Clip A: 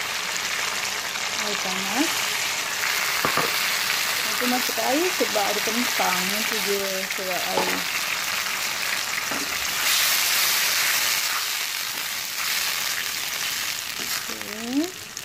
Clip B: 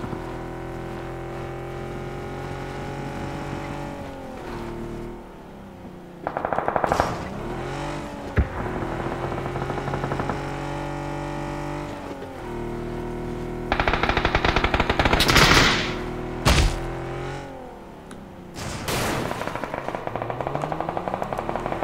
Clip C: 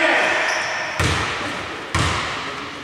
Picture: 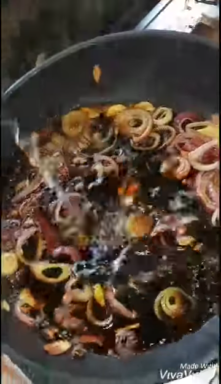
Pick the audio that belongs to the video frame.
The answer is A